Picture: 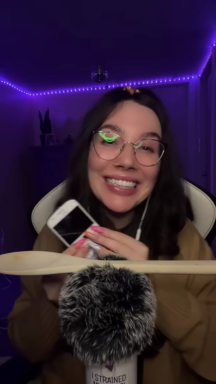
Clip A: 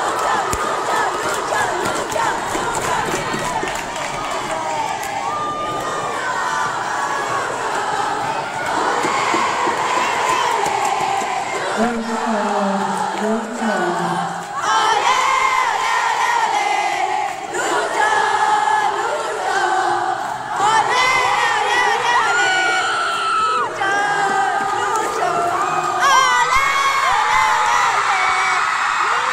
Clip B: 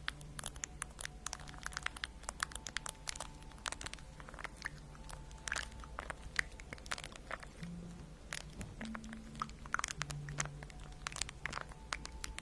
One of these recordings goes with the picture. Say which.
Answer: B